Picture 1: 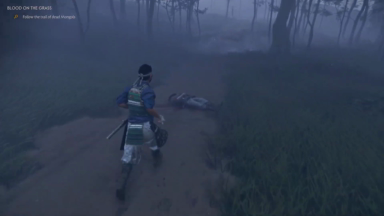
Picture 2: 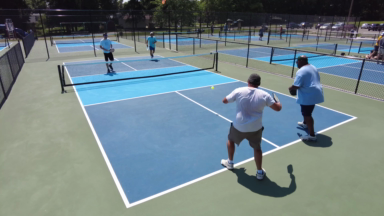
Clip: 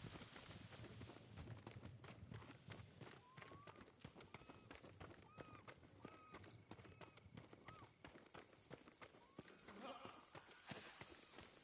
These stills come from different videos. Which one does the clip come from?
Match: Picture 1